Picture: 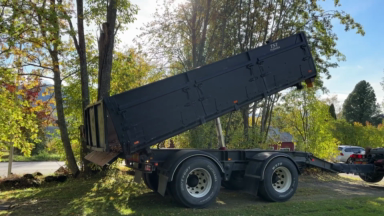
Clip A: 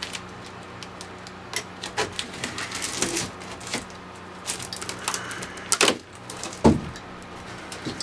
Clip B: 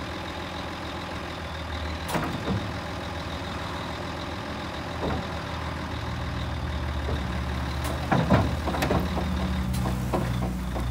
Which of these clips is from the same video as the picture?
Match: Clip B